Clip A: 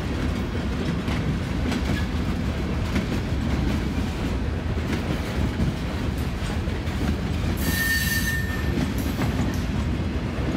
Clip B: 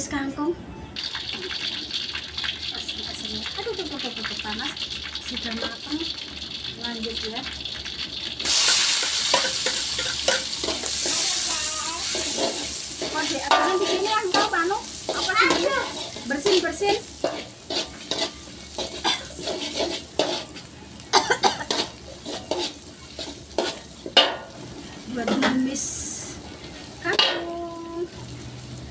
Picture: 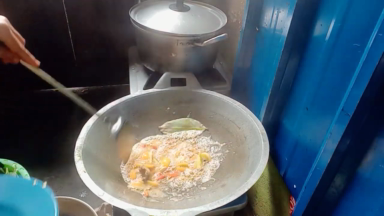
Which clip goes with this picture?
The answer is B